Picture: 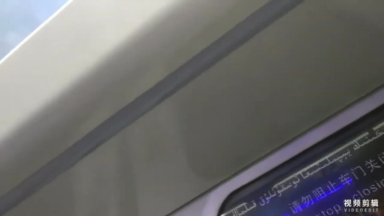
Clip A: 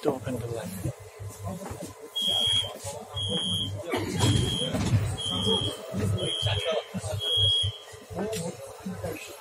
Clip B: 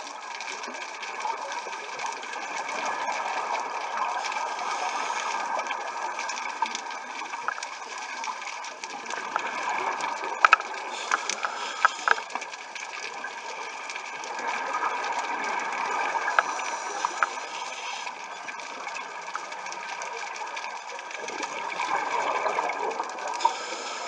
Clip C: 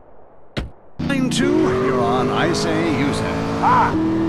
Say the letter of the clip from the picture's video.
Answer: A